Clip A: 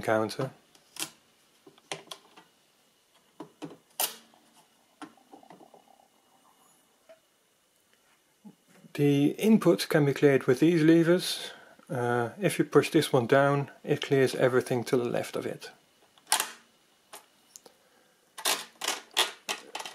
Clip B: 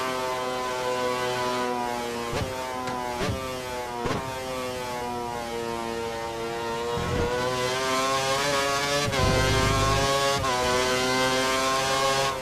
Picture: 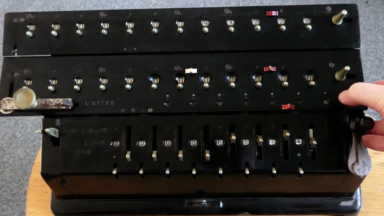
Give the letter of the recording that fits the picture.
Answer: A